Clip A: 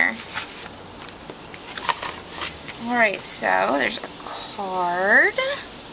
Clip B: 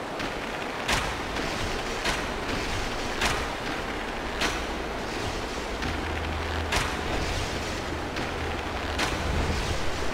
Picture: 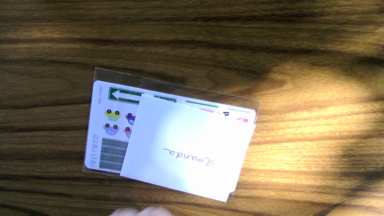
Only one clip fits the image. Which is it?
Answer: A